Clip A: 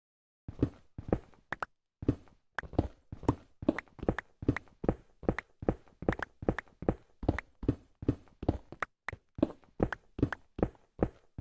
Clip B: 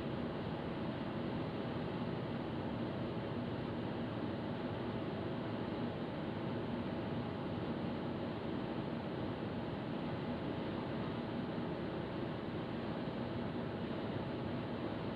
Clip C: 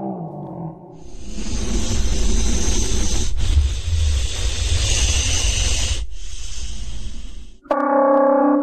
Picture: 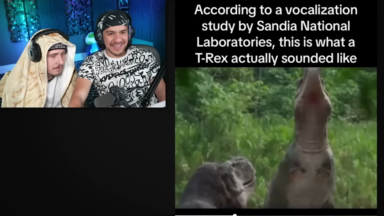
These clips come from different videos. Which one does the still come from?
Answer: C